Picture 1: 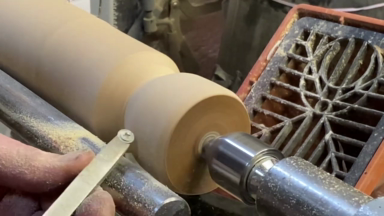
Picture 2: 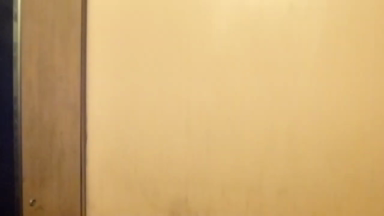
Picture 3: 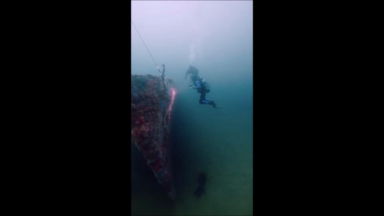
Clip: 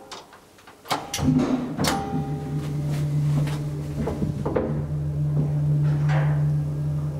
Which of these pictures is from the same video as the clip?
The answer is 2